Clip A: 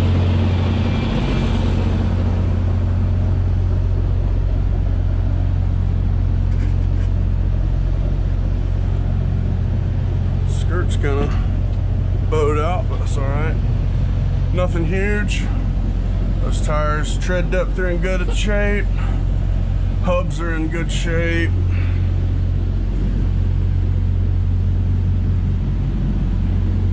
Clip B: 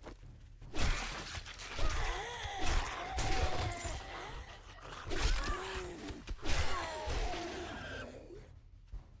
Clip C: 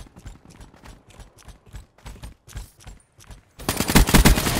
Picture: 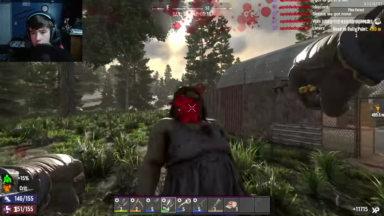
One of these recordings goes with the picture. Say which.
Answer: B